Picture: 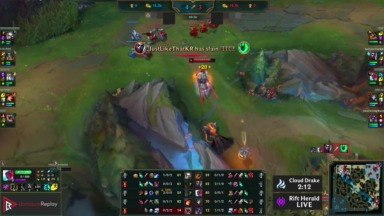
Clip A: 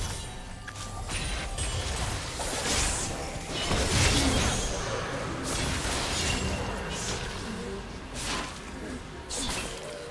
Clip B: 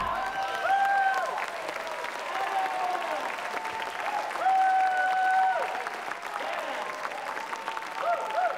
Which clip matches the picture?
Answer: A